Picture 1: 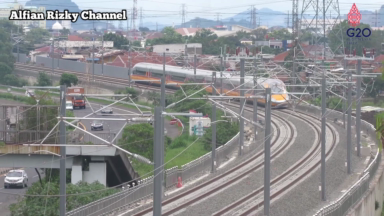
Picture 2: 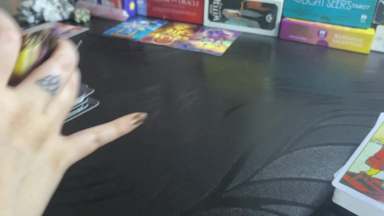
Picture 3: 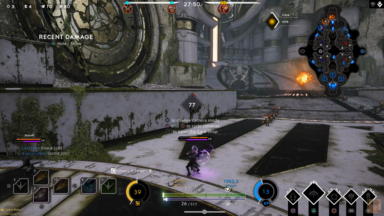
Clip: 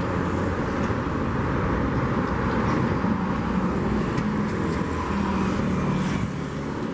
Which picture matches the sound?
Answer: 1